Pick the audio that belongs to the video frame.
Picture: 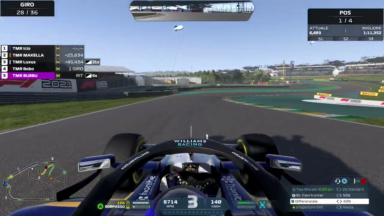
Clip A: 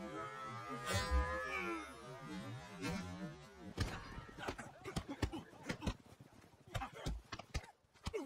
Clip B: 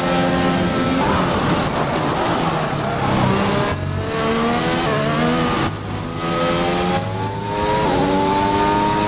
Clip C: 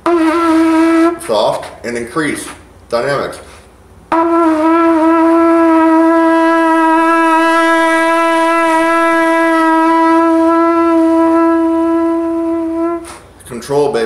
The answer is B